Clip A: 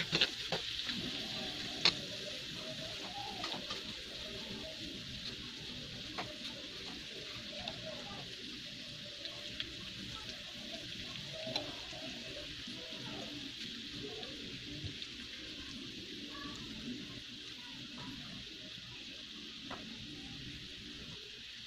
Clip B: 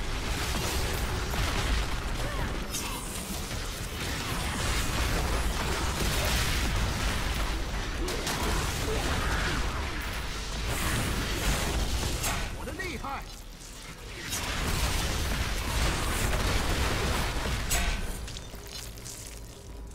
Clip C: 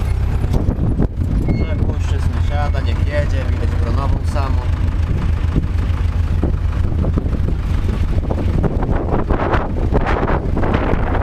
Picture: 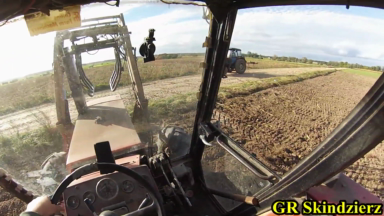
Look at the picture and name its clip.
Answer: C